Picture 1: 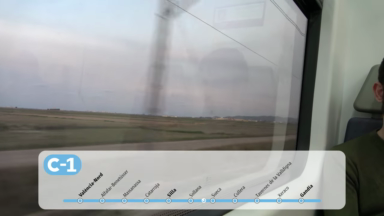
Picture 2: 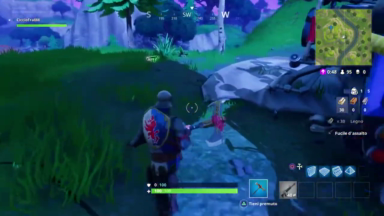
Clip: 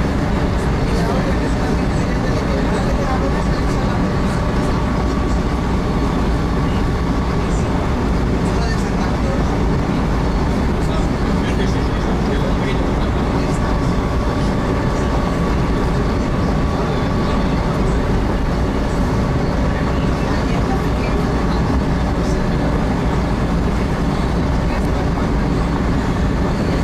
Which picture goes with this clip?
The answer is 1